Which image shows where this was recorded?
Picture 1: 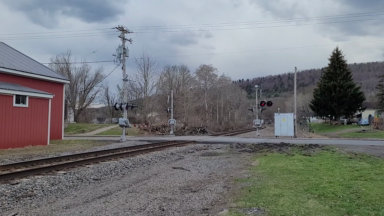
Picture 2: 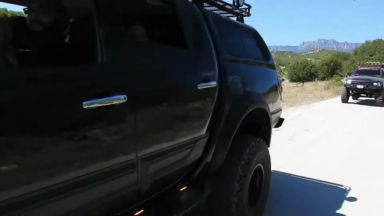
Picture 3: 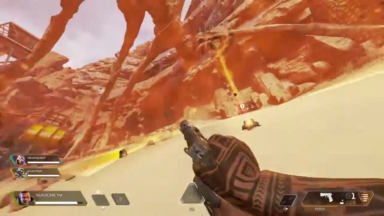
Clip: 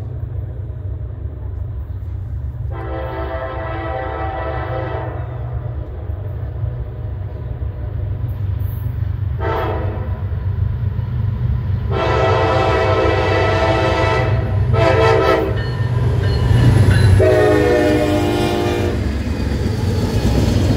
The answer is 1